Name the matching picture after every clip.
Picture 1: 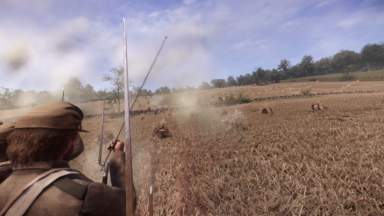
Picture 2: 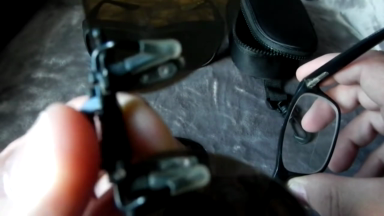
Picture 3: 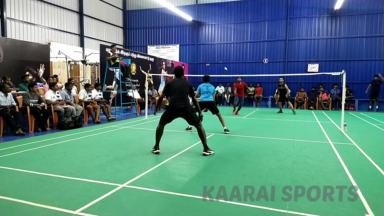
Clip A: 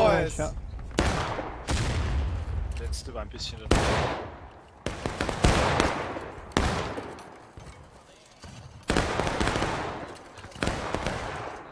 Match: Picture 1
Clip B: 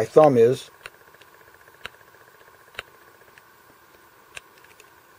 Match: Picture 2